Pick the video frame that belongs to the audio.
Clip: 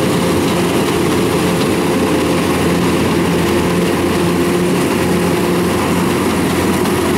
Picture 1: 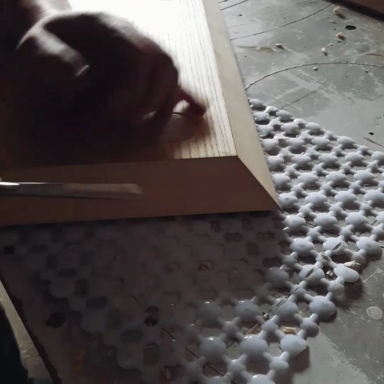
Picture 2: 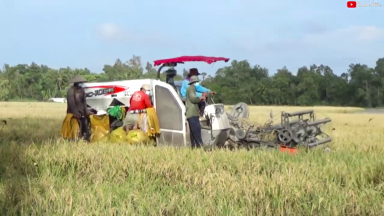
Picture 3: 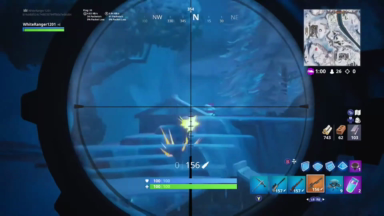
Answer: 2